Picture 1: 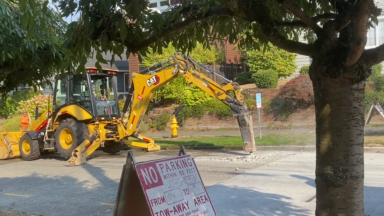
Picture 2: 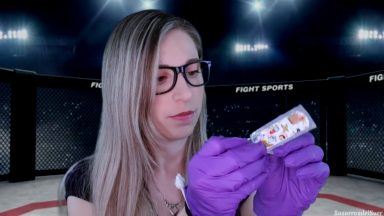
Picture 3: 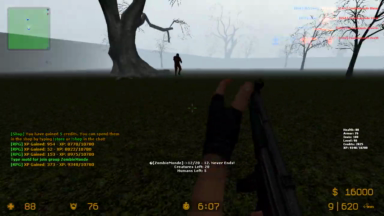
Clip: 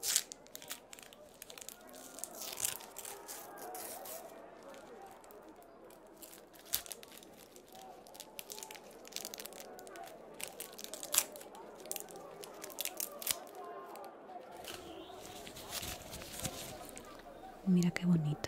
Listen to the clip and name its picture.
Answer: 2